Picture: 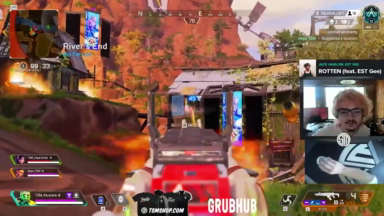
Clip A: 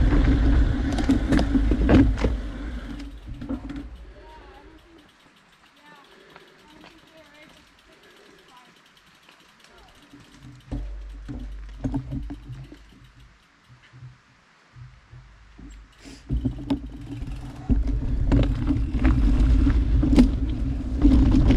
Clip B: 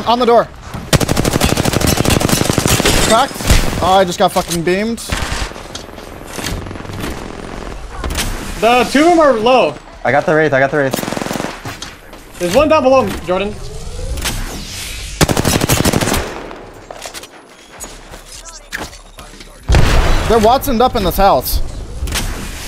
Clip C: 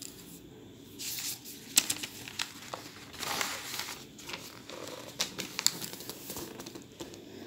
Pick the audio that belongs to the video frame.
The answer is B